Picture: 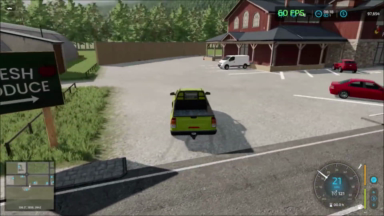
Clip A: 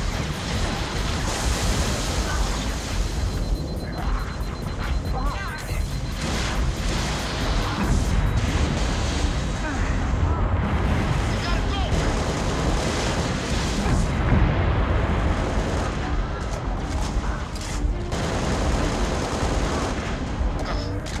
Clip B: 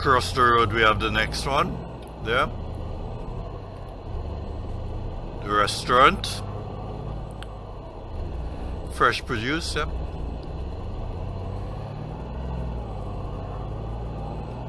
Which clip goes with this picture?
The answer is B